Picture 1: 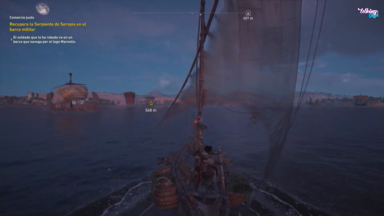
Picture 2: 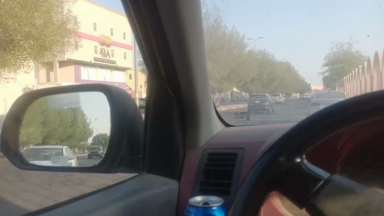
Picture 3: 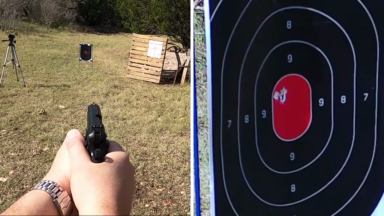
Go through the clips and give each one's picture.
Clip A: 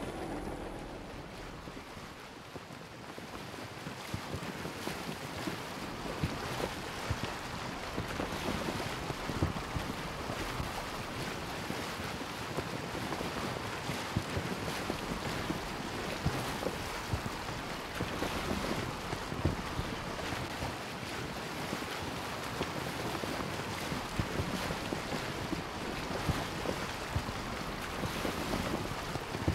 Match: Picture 1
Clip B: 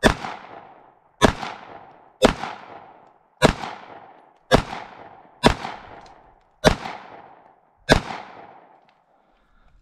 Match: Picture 3